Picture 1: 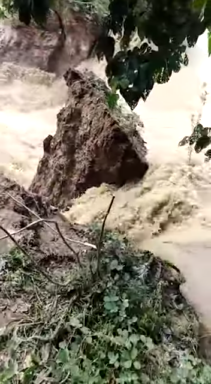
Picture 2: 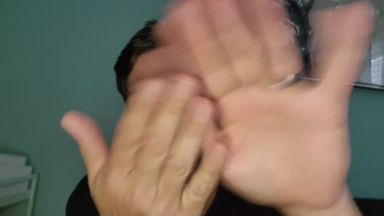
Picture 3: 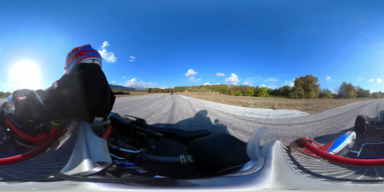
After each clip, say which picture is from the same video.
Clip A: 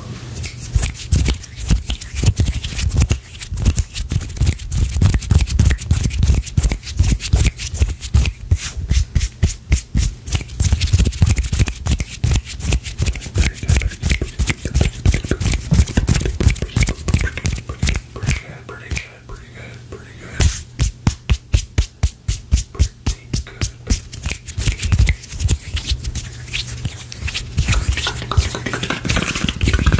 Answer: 2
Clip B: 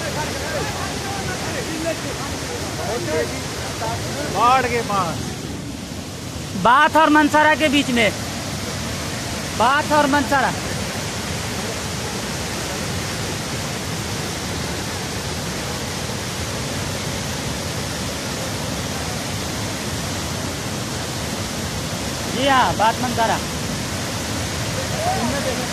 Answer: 1